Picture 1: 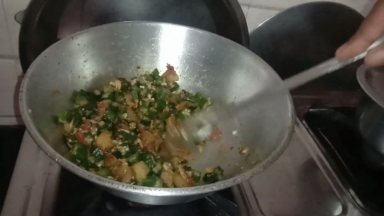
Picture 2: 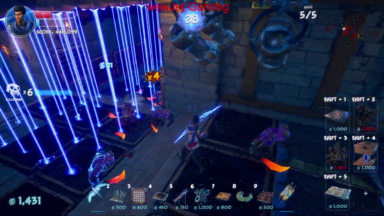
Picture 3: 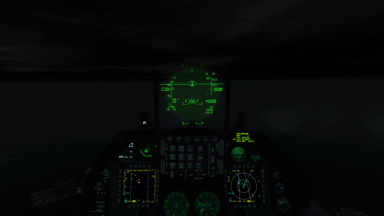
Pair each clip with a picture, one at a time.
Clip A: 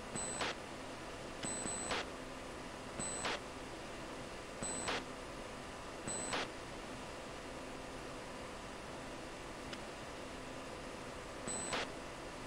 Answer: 3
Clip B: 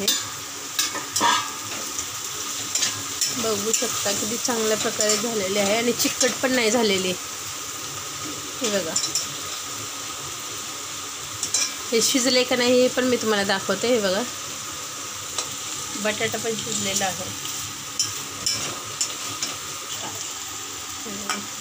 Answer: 1